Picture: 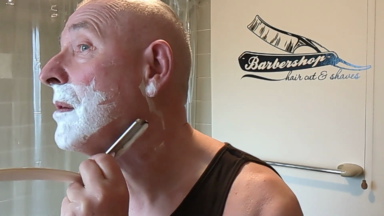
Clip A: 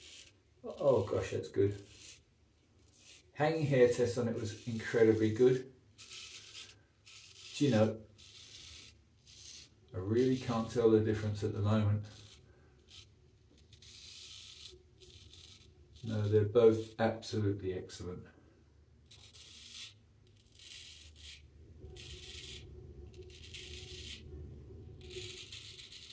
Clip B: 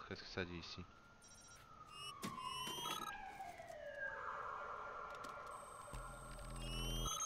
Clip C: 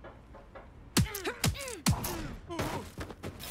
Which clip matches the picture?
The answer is A